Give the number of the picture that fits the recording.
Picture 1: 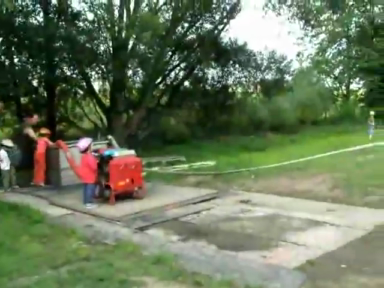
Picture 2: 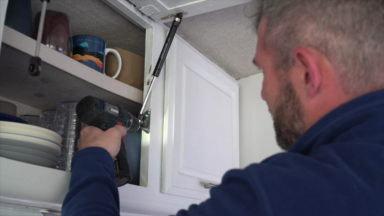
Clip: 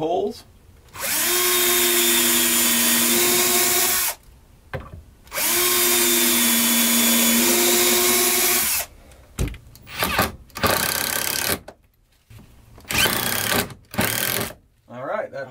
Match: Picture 2